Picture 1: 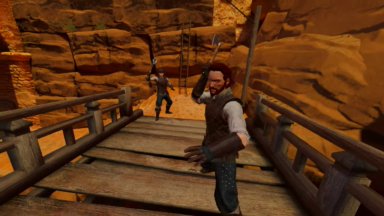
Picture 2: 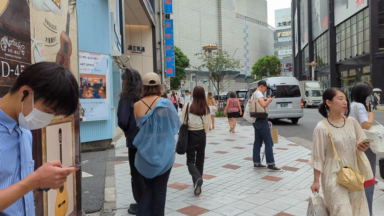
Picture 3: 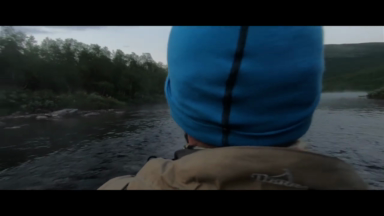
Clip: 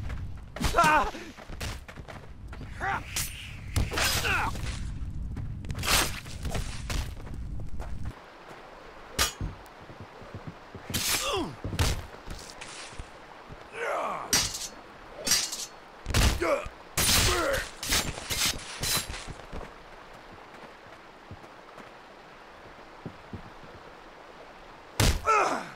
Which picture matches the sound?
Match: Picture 1